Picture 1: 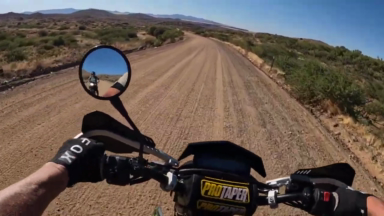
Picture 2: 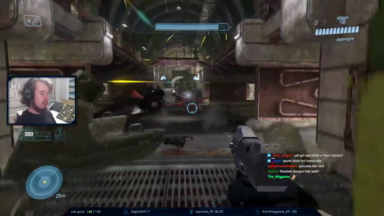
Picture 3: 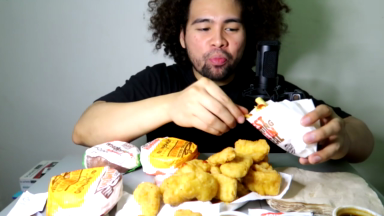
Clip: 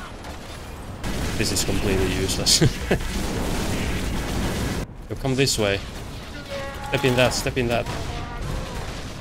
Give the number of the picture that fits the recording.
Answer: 2